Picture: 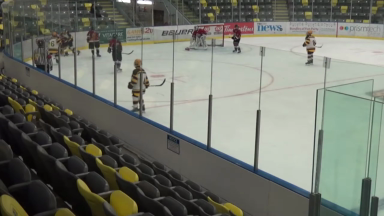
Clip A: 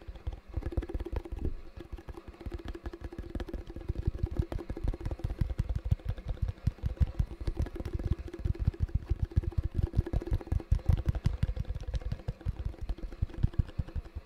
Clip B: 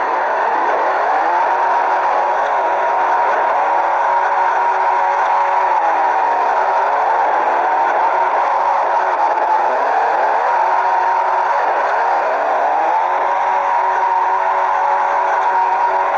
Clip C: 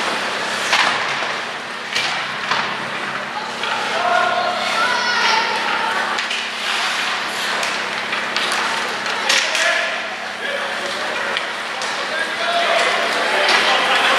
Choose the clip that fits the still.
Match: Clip C